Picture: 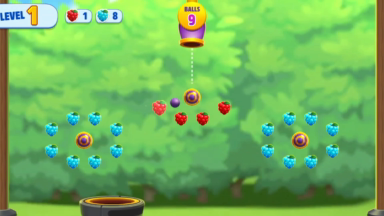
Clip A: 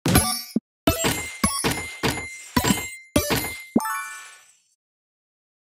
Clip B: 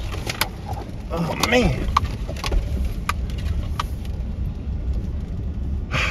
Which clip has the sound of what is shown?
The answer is A